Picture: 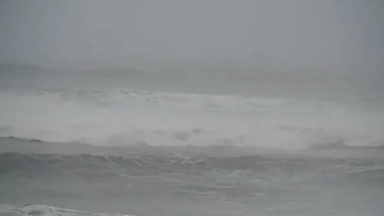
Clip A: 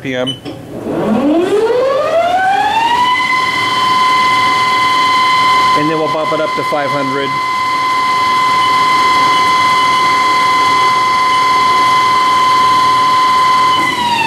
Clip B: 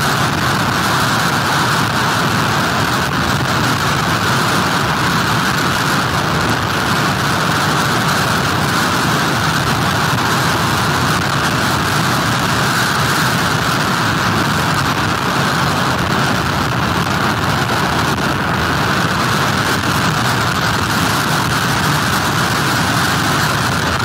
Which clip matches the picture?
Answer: B